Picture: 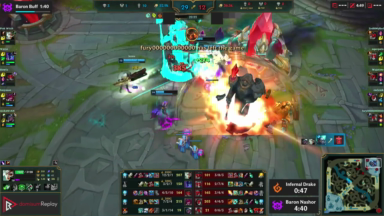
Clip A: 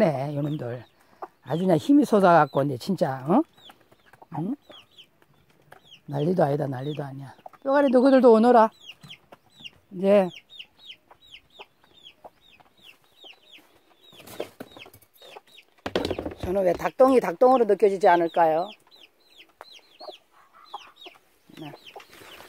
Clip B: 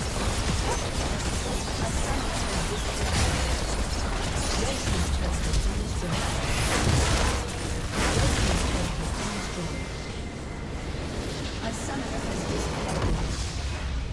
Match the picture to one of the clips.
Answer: B